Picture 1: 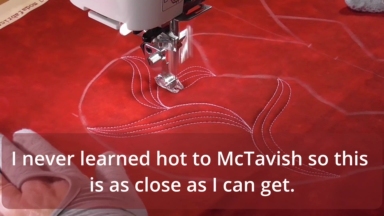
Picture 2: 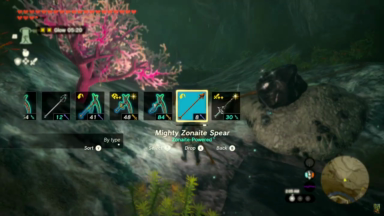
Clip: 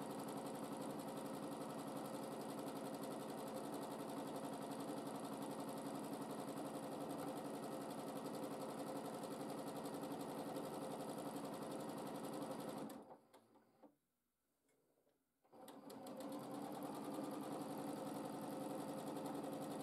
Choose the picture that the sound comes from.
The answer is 1